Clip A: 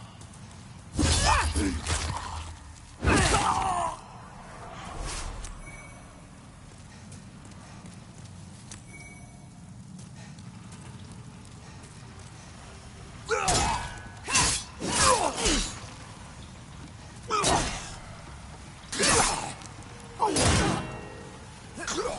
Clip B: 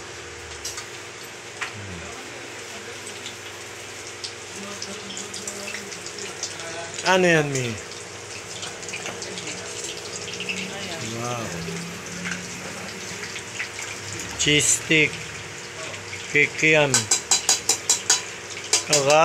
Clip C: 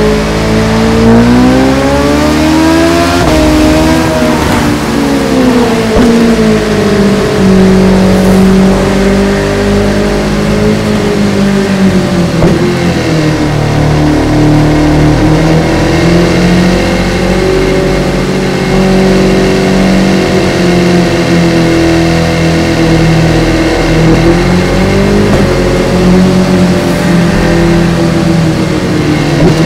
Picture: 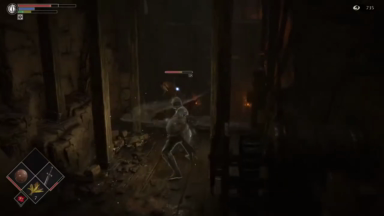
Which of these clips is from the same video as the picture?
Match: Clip A